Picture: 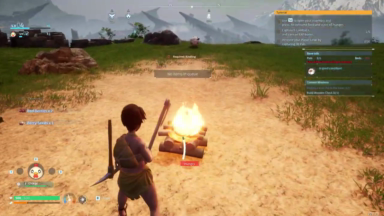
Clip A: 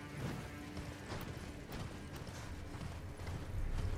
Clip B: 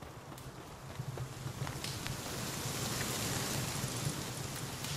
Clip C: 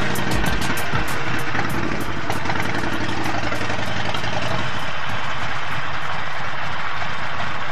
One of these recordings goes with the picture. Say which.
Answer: B